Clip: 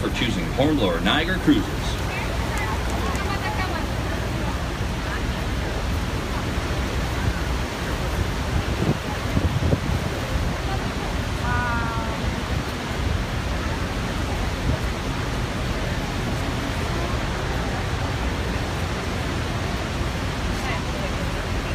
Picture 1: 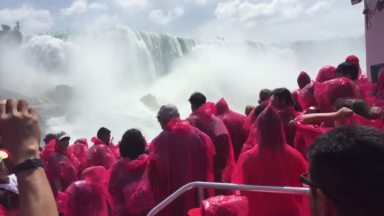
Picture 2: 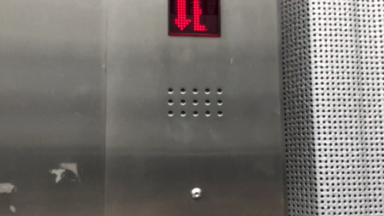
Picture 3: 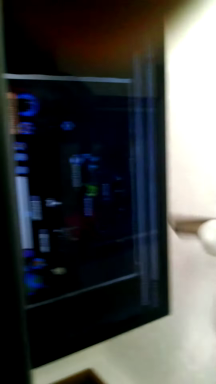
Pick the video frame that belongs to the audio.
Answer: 1